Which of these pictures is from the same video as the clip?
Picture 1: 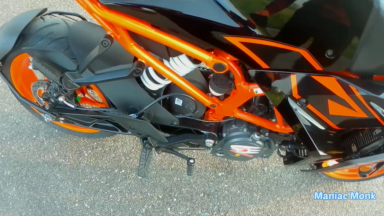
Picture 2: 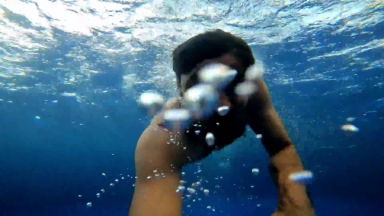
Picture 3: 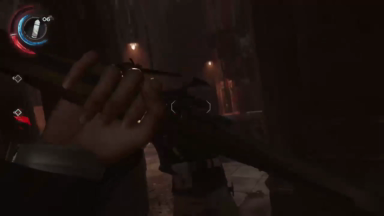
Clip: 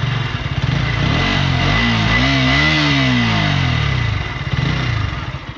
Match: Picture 1